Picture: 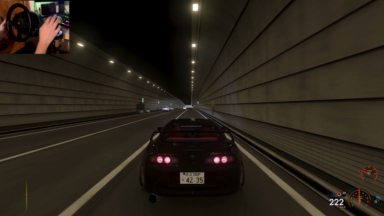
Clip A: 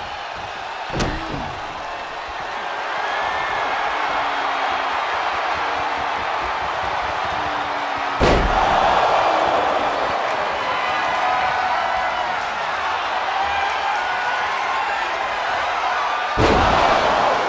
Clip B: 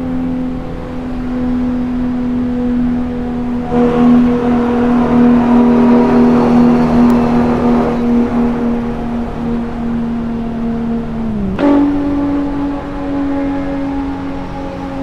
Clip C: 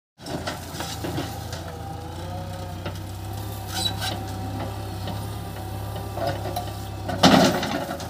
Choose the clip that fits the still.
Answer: B